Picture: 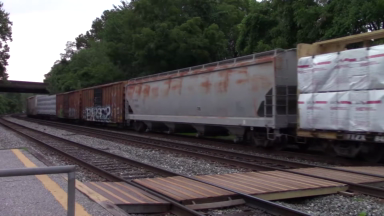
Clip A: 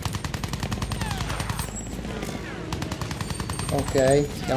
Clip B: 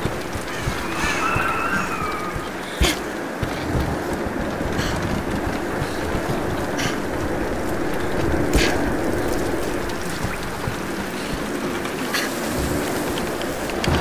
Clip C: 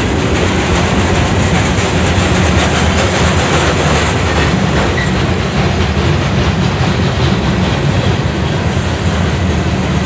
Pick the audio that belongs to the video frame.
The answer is C